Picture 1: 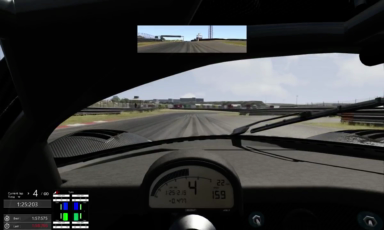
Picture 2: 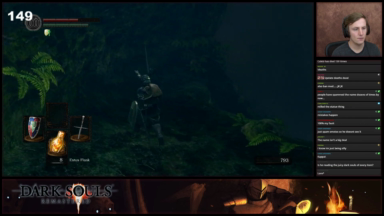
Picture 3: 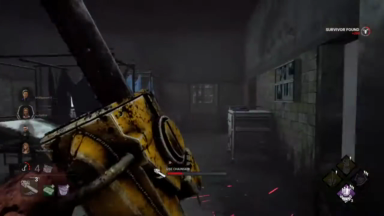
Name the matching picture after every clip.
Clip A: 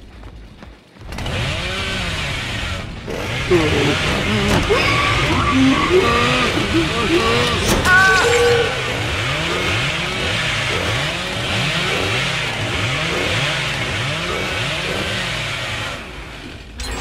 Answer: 3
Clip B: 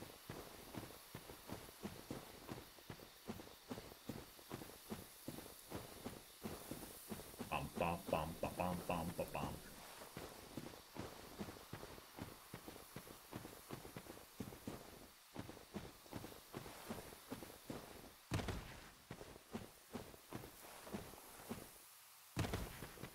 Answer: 2